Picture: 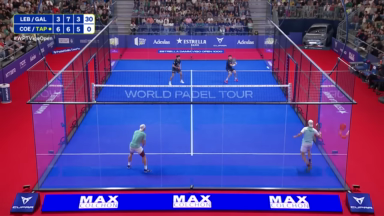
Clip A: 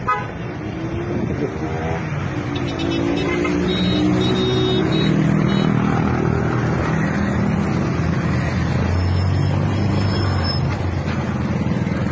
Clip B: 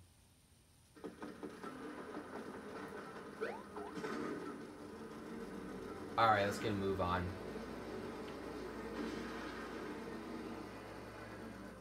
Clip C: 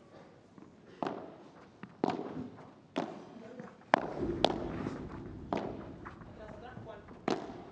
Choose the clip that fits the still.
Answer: C